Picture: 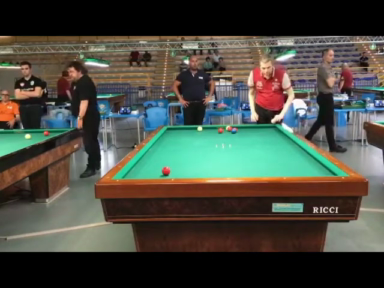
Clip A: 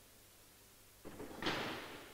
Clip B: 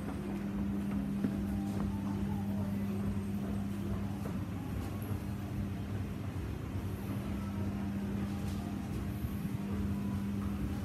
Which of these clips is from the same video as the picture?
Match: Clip A